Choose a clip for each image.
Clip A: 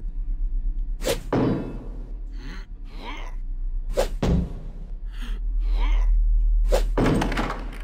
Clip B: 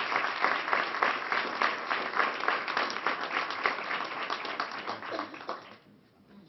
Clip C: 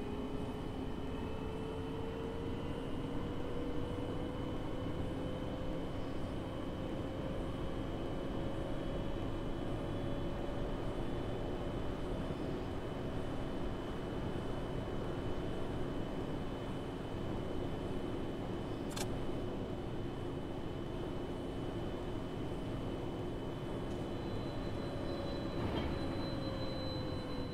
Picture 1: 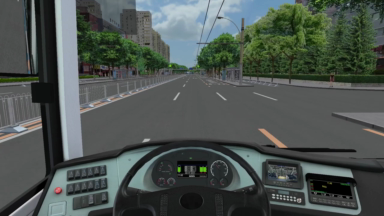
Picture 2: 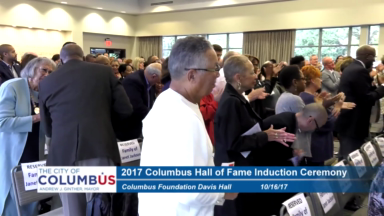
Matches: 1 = C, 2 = B